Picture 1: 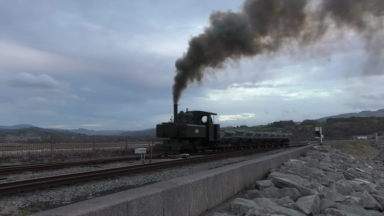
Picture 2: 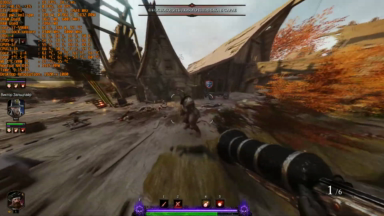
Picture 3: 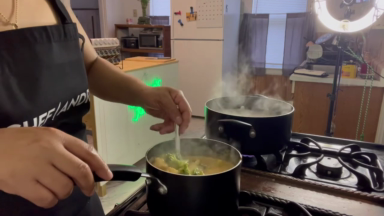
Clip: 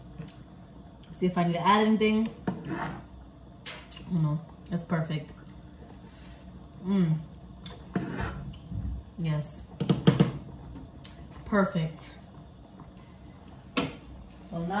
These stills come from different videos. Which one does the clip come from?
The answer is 3